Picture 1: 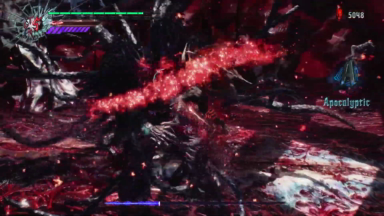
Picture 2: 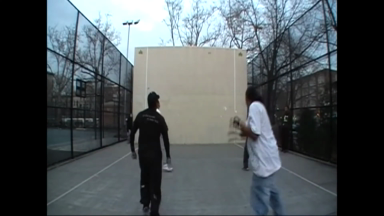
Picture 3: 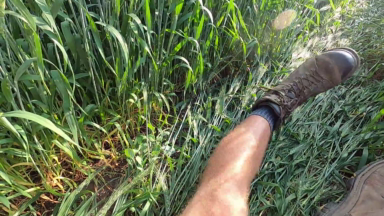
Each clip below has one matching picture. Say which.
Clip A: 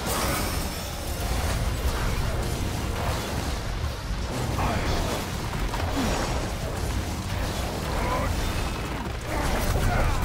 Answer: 1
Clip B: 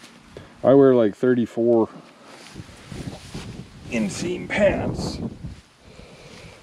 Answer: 3